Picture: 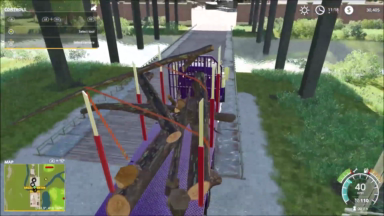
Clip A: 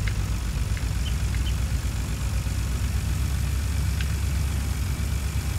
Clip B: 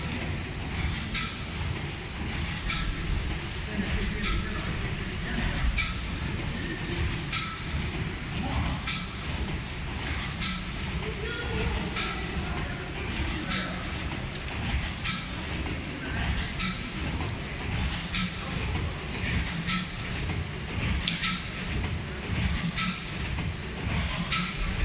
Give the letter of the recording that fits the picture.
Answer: A